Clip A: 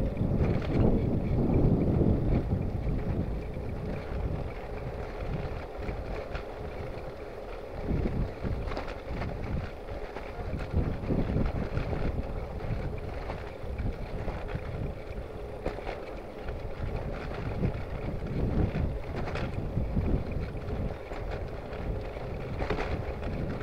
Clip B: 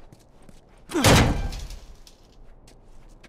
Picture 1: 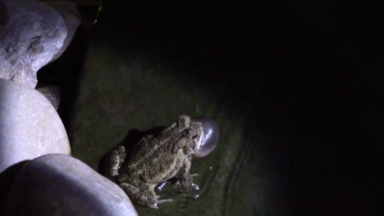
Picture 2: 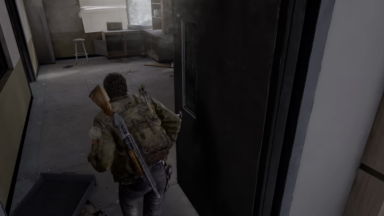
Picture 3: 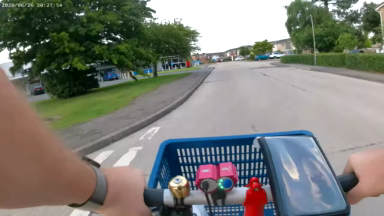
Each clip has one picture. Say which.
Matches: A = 3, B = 2